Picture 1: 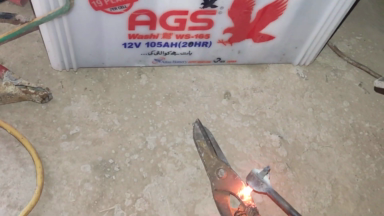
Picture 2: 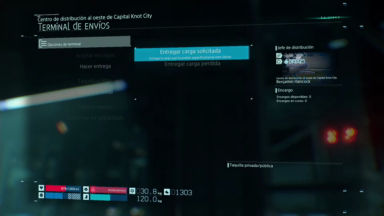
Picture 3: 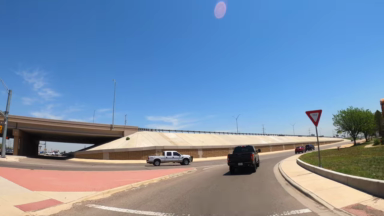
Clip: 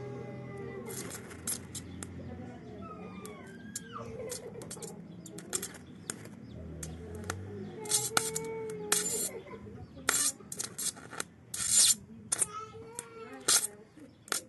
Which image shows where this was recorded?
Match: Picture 1